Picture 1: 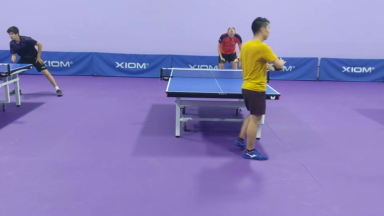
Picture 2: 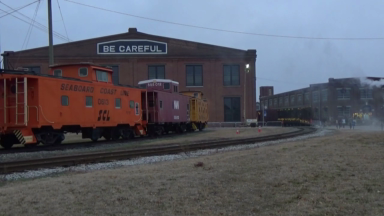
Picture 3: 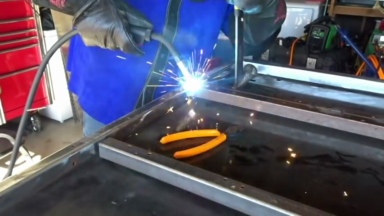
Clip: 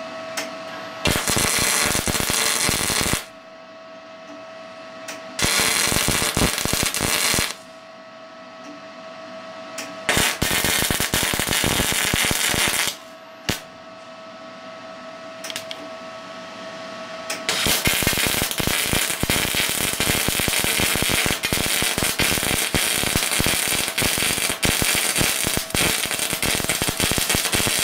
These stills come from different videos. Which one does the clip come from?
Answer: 3